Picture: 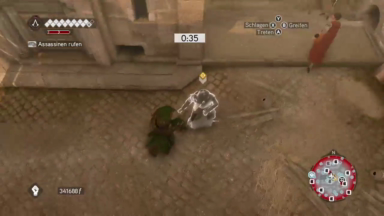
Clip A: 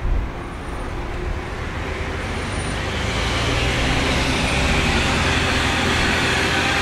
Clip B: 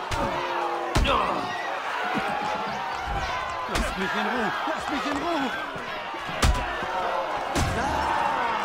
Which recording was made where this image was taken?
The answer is B